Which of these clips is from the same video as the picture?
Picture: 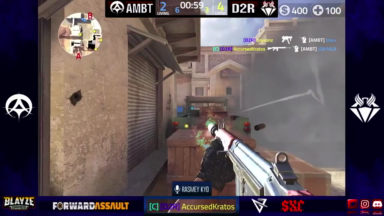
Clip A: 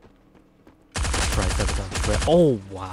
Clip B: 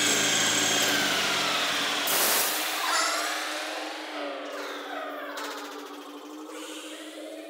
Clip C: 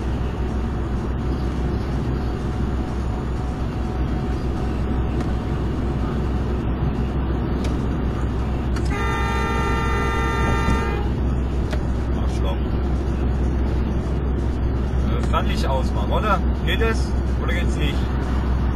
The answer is A